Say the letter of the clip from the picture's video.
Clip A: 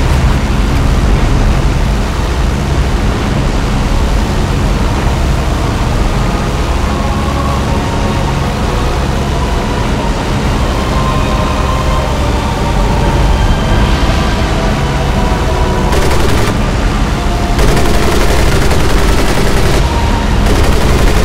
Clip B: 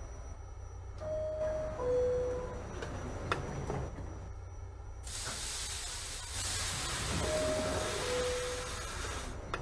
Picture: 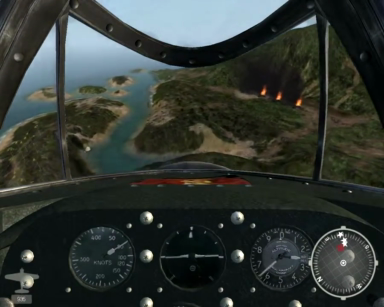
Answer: A